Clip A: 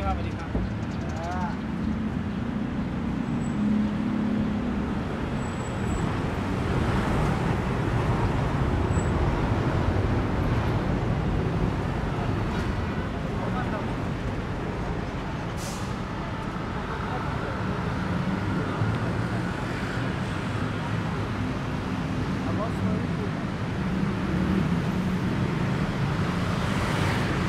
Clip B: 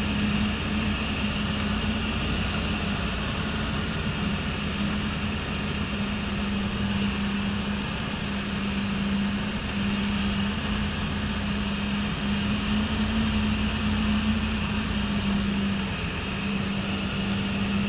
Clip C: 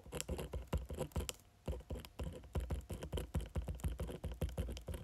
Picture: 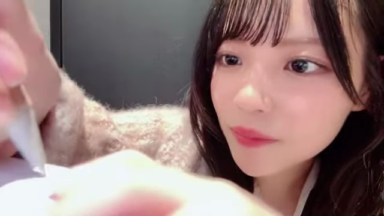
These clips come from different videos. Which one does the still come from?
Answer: C